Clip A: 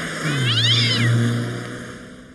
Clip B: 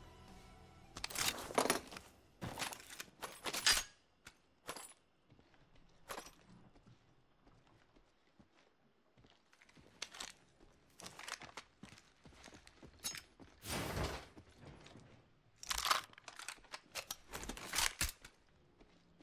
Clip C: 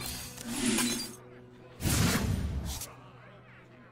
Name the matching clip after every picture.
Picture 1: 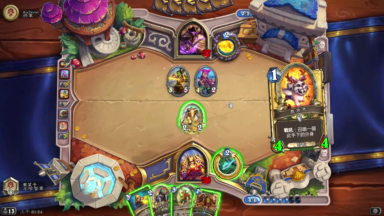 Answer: C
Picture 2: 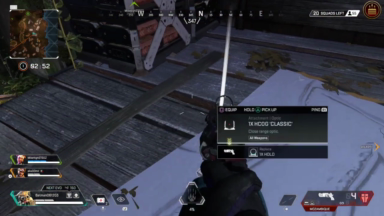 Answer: B